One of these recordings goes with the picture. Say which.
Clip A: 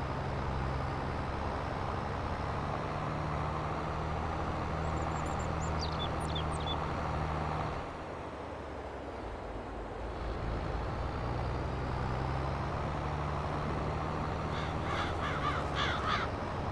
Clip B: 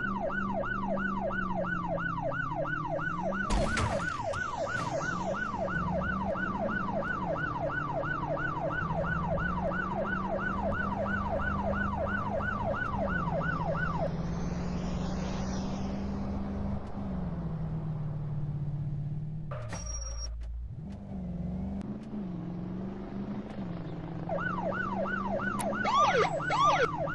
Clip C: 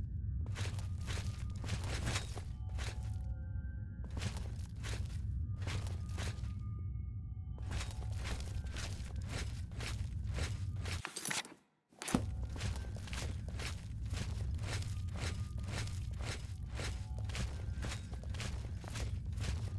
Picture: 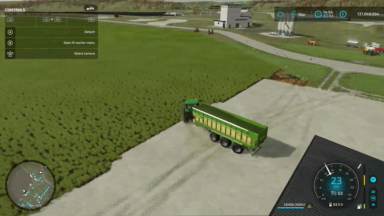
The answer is A